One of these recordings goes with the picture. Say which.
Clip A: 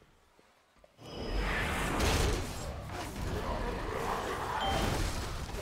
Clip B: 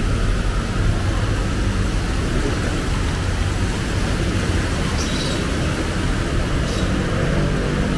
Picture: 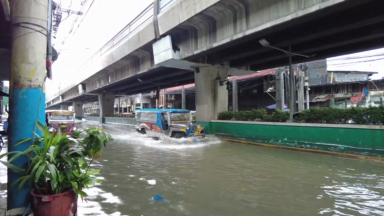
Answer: B